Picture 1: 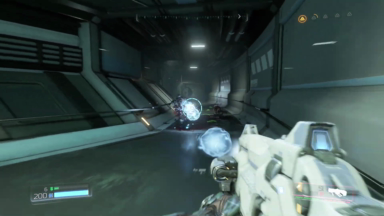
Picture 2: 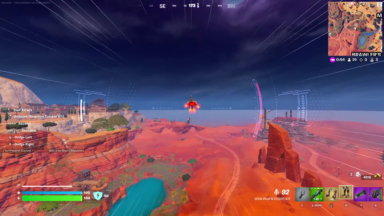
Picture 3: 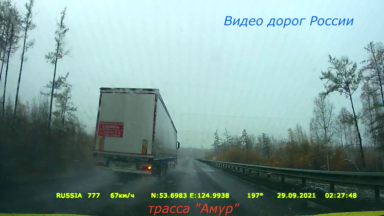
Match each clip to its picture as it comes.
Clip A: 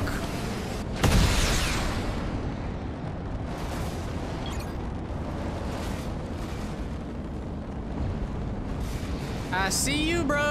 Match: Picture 2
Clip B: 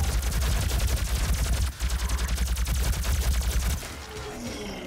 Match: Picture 1